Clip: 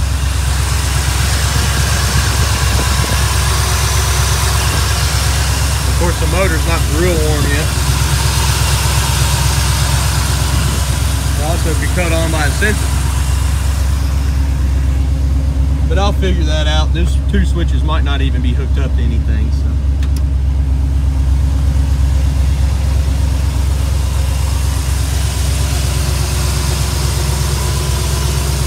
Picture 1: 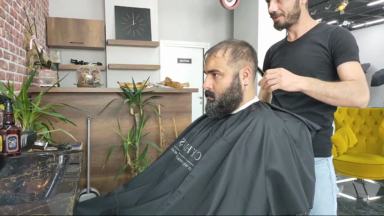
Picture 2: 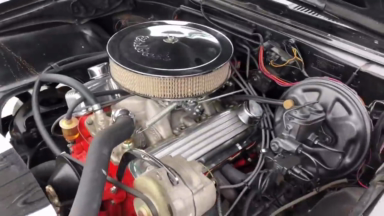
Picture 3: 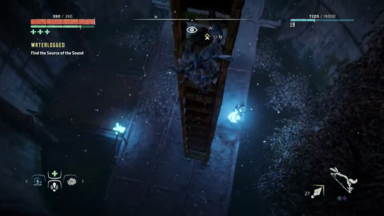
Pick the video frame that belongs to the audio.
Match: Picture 2